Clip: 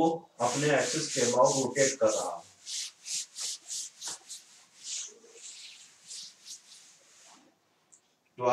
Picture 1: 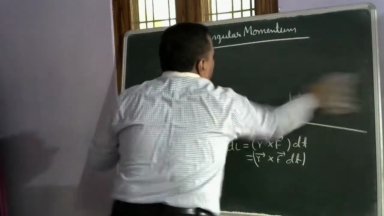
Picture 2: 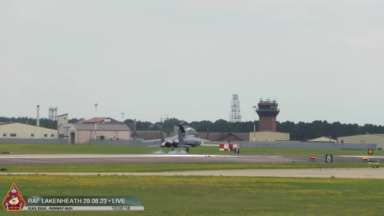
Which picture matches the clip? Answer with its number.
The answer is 1